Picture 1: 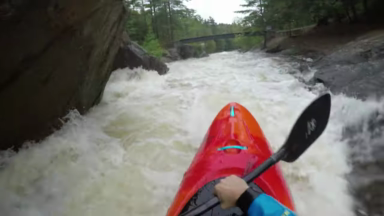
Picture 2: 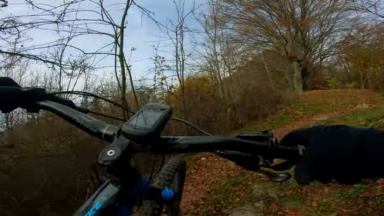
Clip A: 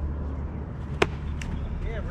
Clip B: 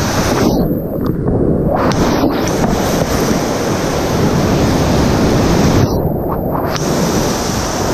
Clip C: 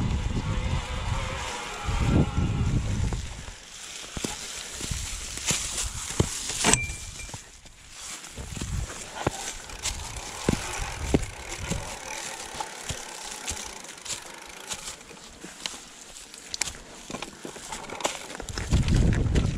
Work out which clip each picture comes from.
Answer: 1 B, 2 C